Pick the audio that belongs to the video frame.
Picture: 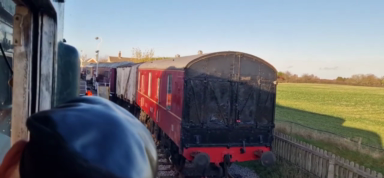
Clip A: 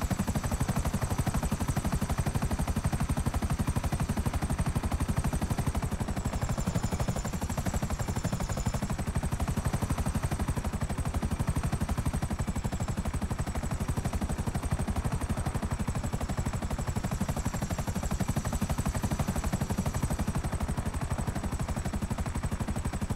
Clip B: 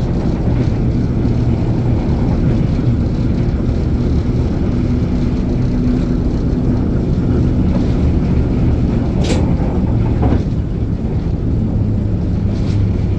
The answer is B